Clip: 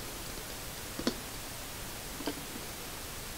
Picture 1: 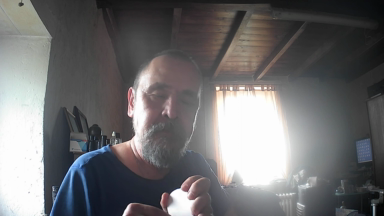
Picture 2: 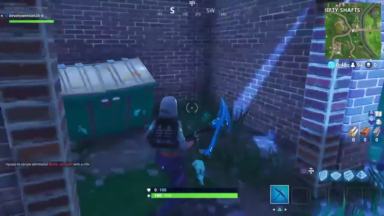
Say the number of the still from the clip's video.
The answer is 1